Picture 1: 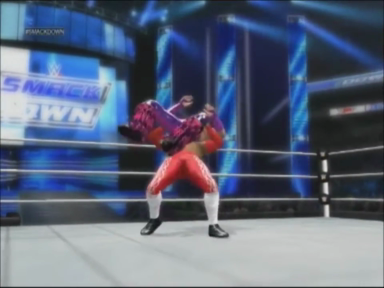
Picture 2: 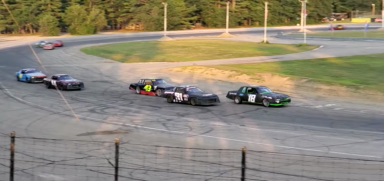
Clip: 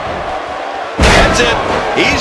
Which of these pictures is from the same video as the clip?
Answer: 1